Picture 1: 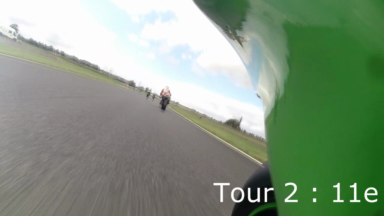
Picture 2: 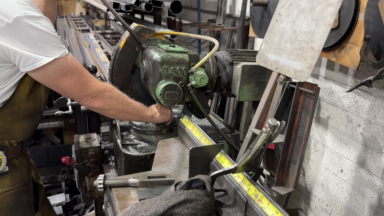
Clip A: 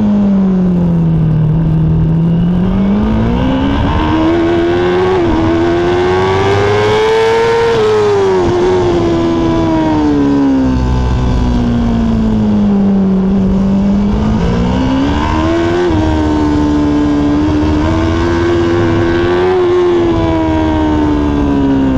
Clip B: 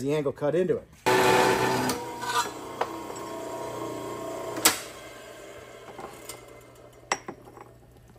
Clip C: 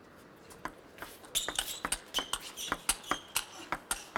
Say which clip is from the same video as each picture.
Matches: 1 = A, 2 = B